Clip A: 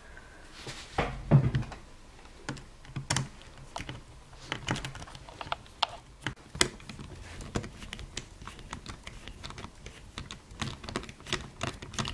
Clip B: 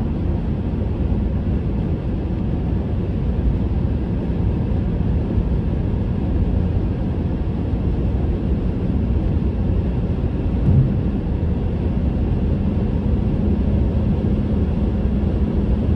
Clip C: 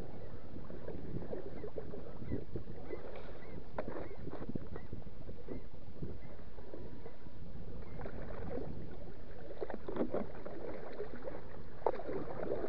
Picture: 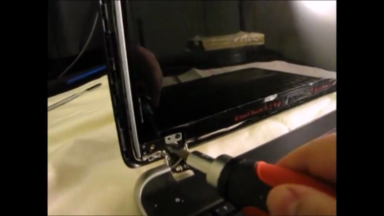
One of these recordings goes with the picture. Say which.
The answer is A